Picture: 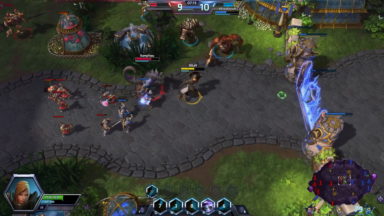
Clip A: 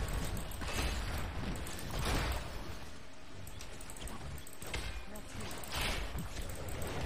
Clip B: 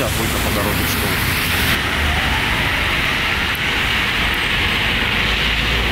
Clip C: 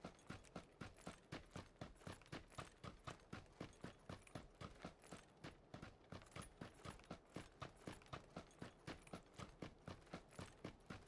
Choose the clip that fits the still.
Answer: A